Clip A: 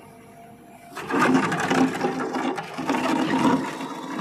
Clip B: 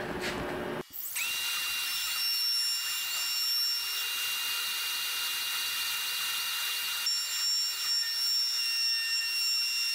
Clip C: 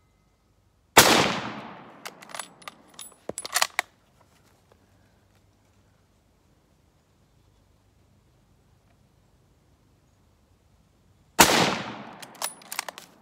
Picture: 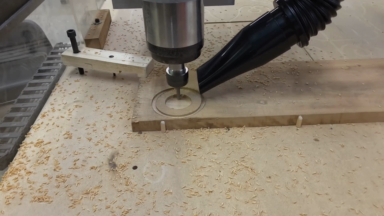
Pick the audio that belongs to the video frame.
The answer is B